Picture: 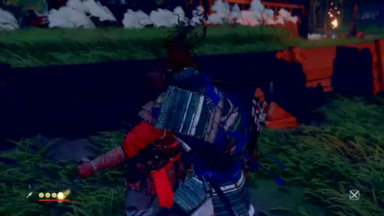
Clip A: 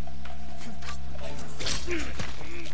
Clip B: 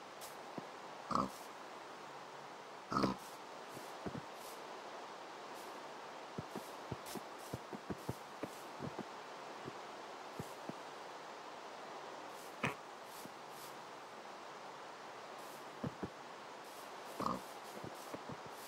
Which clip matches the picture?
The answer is A